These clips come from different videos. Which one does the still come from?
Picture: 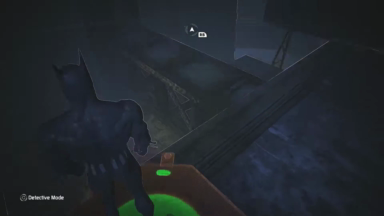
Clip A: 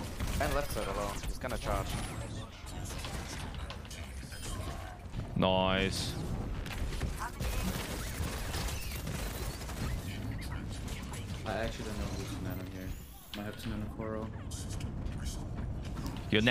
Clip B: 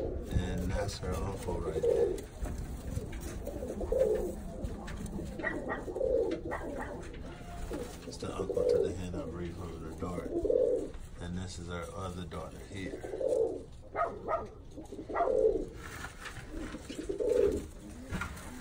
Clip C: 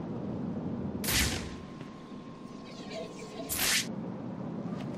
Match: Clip C